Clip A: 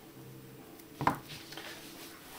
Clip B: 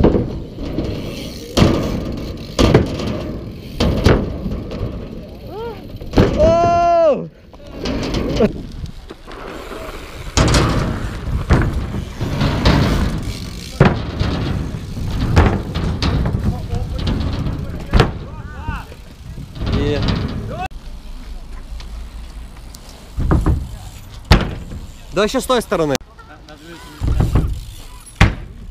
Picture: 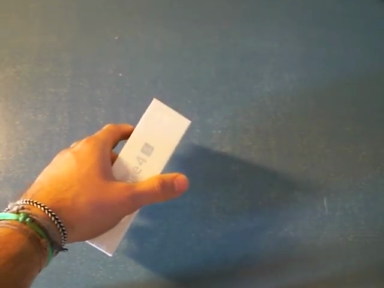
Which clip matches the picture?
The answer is A